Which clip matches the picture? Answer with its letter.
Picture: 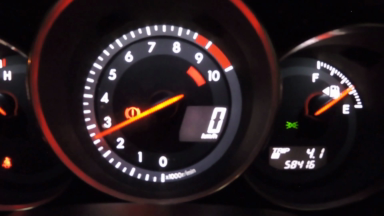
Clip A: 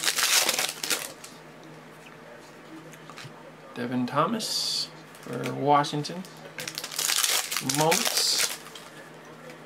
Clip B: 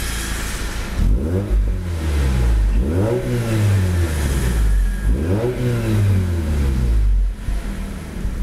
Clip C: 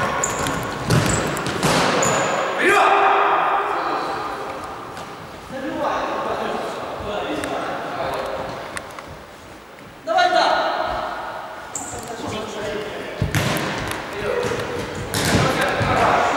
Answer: B